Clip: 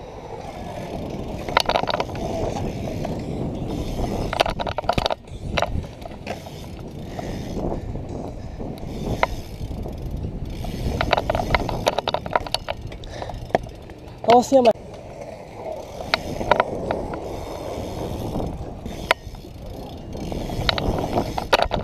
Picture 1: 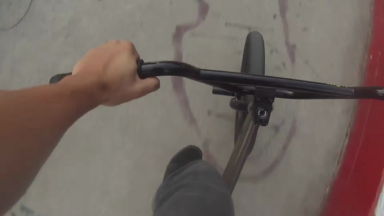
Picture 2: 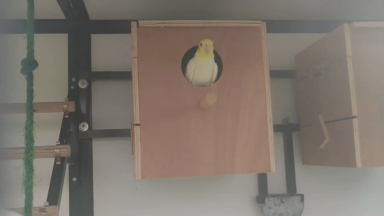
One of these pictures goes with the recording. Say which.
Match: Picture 1